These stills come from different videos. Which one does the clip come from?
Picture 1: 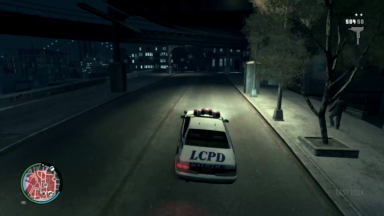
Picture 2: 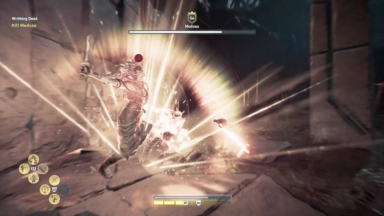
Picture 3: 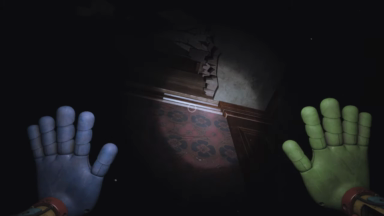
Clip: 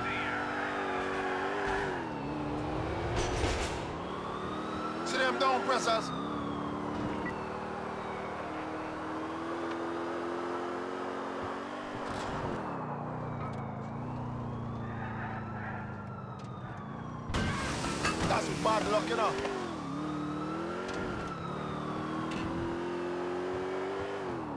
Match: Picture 1